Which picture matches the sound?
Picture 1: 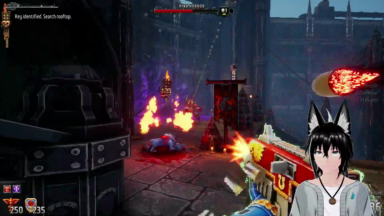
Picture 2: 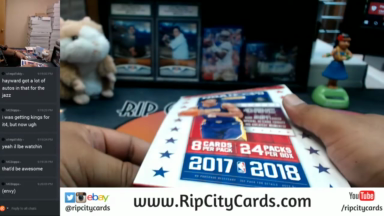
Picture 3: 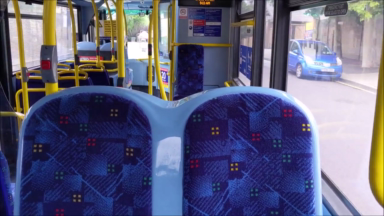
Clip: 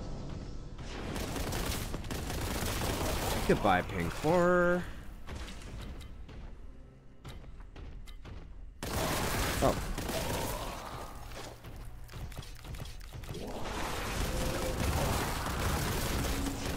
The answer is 1